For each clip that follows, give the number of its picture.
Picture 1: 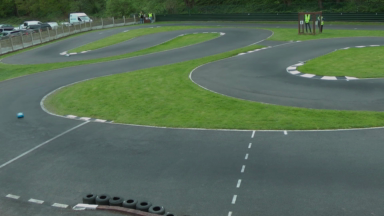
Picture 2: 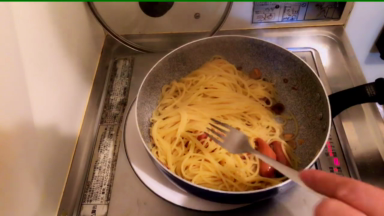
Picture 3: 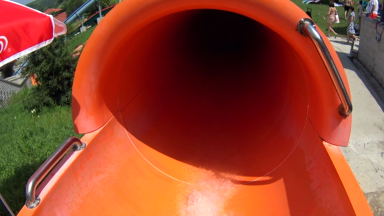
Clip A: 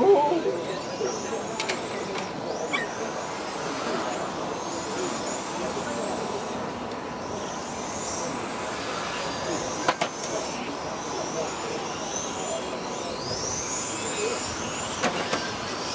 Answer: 1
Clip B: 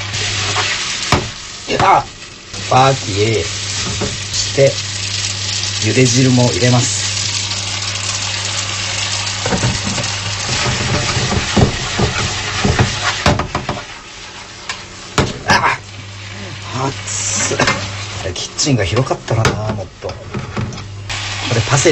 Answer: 2